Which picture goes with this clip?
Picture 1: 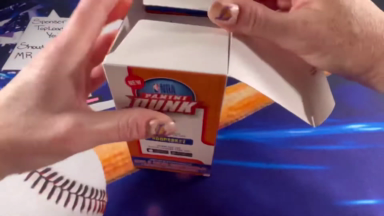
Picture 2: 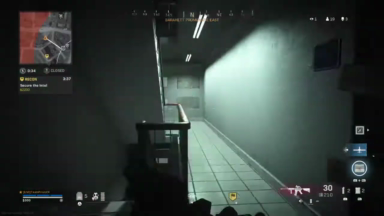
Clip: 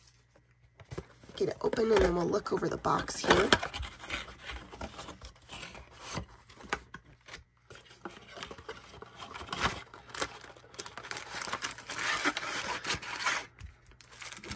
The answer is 1